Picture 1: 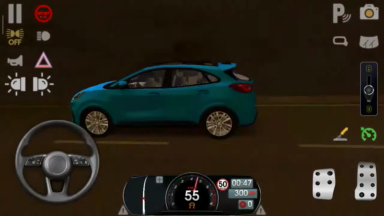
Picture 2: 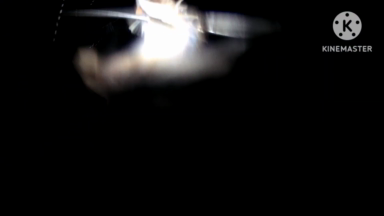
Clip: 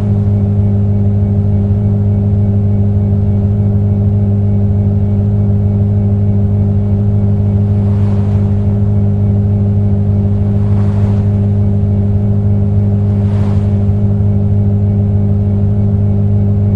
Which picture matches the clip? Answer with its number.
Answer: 1